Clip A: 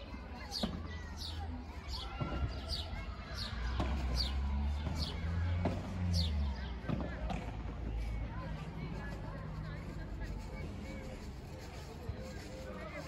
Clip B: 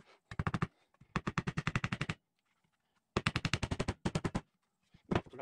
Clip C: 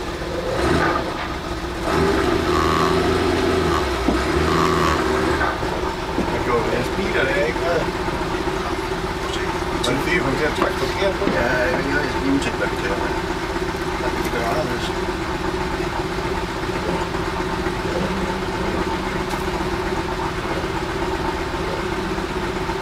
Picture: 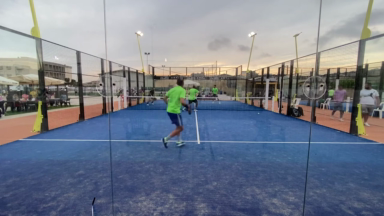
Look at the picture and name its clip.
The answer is A